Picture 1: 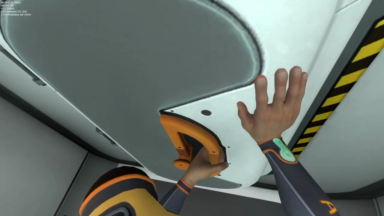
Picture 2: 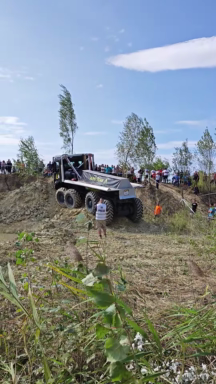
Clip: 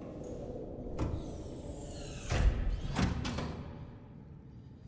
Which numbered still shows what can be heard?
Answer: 1